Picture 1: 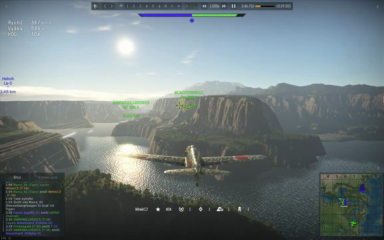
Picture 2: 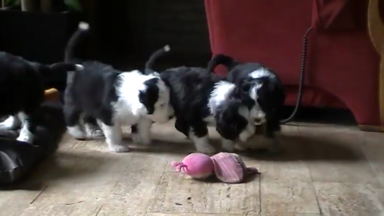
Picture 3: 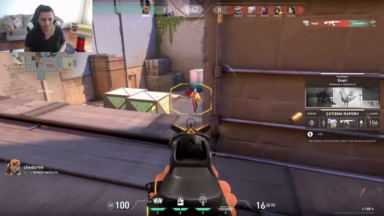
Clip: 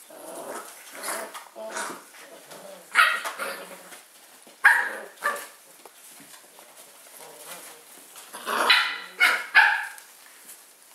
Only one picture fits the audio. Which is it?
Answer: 2